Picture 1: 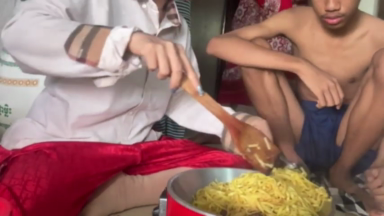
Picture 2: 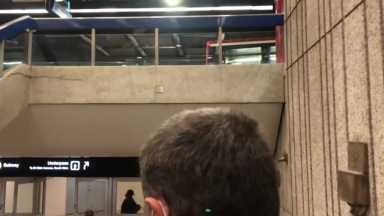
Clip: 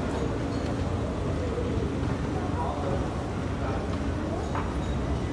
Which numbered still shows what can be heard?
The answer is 2